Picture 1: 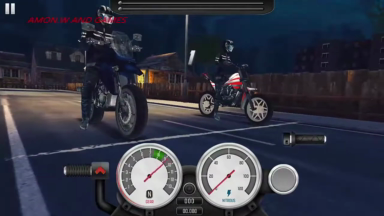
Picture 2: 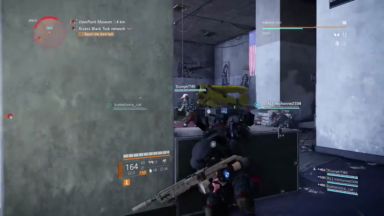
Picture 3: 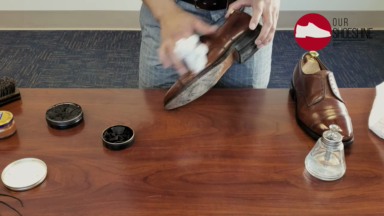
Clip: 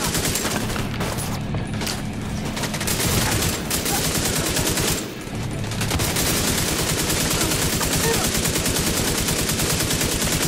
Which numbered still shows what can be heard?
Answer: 2